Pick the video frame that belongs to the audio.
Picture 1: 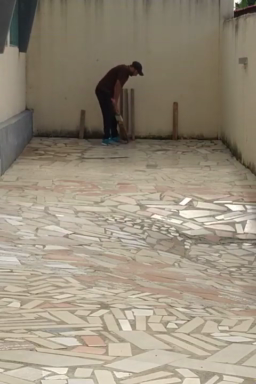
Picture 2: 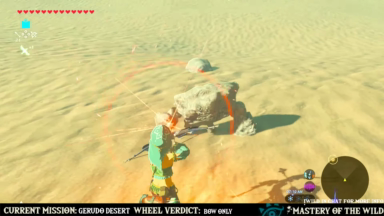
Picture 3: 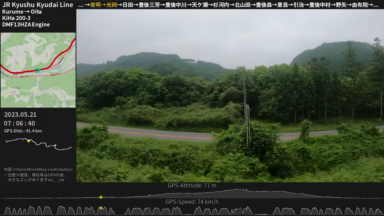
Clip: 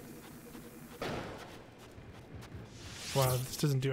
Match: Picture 2